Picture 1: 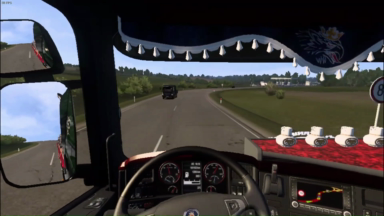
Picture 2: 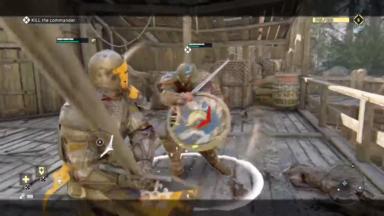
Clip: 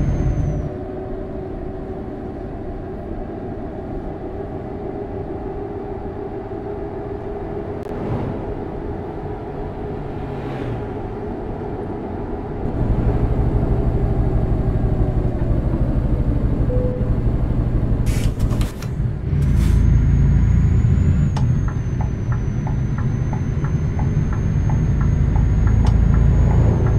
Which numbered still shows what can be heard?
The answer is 1